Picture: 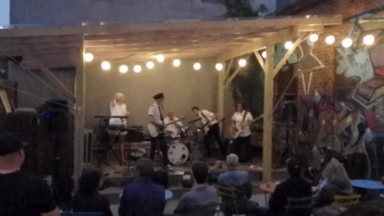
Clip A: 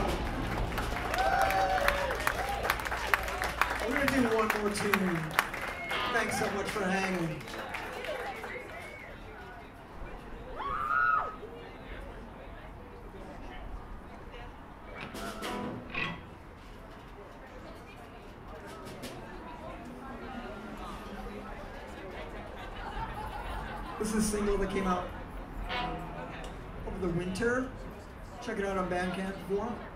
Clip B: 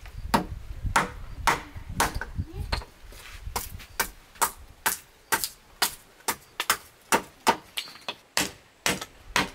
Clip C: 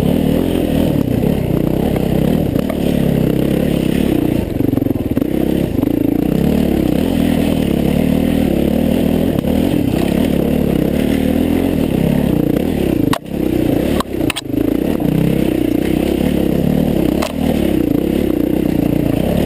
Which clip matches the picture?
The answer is A